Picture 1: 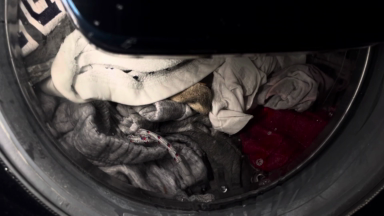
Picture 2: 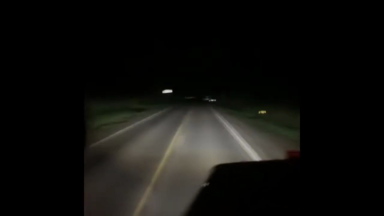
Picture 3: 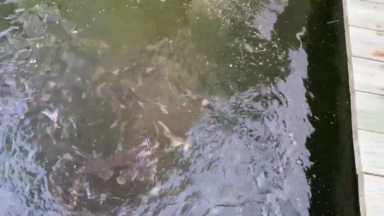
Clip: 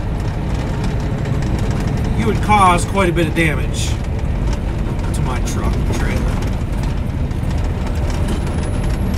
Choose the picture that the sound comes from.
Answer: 2